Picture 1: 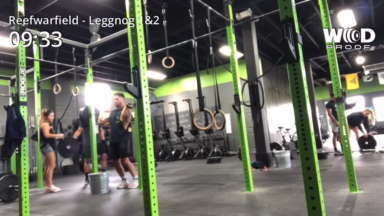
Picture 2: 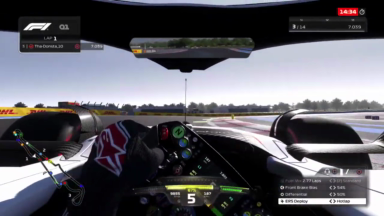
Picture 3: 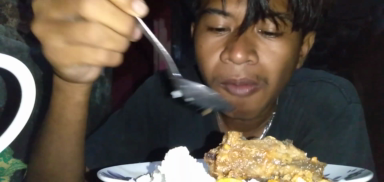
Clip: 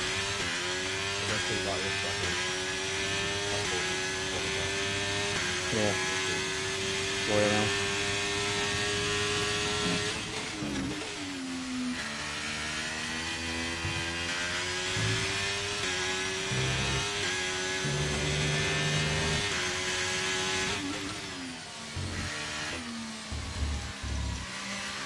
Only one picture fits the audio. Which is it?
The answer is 2